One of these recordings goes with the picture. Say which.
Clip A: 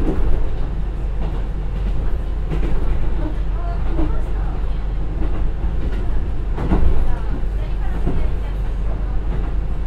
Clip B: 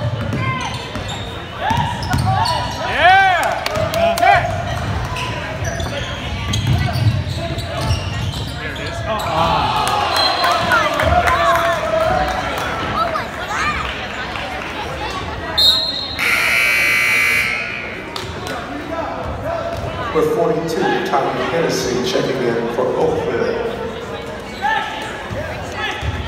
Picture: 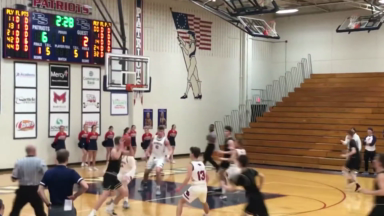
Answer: B